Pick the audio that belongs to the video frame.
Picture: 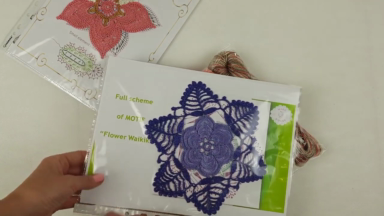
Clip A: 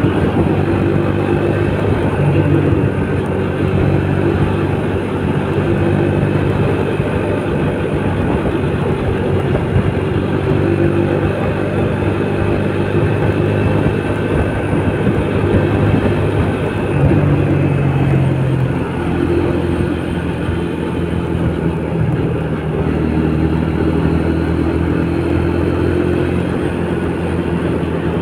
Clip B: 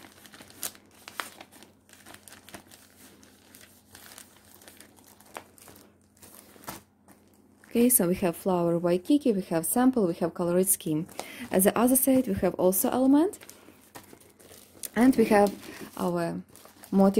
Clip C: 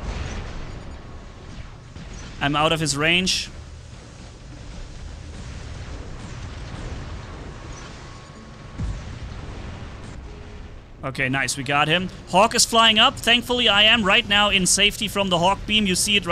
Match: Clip B